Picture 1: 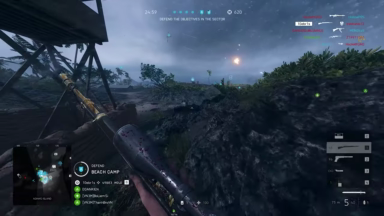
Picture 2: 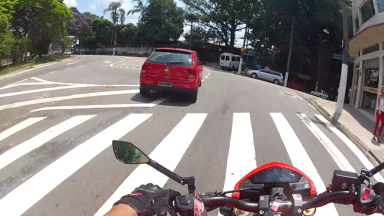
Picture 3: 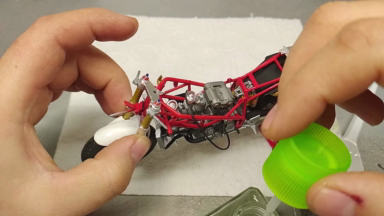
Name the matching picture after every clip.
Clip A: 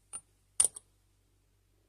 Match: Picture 3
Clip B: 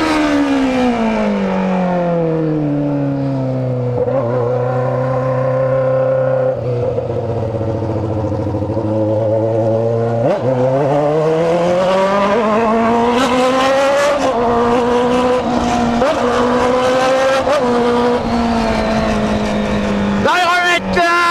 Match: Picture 2